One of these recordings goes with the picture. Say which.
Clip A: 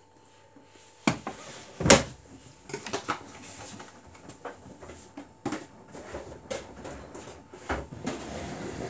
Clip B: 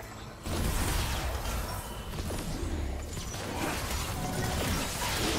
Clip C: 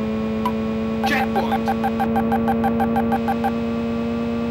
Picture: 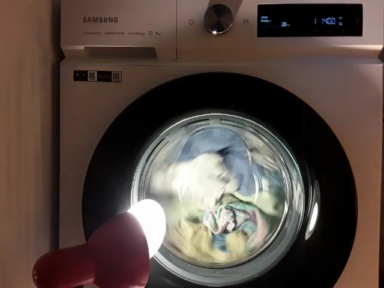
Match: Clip A